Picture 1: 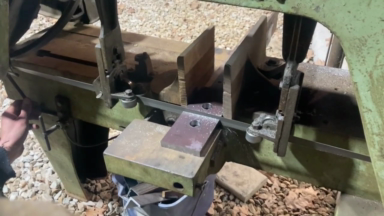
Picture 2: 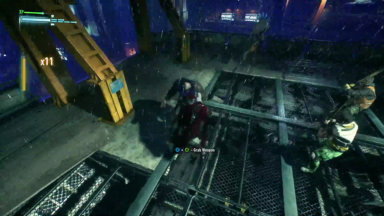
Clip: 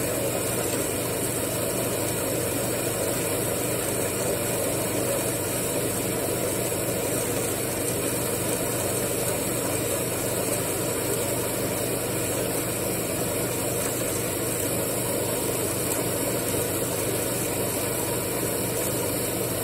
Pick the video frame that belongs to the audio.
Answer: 1